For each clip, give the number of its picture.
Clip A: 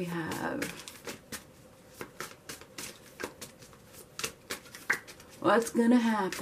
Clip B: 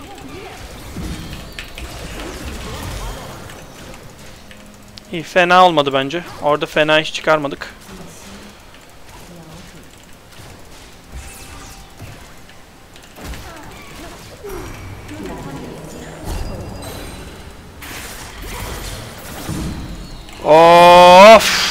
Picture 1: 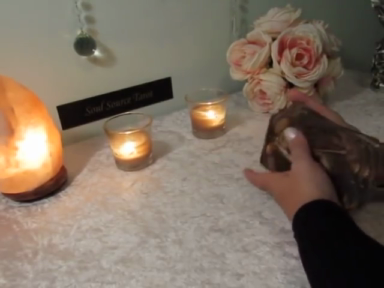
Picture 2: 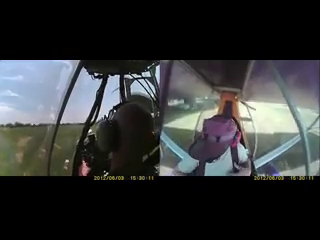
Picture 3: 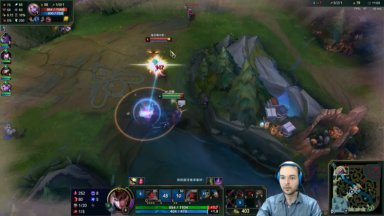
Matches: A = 1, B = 3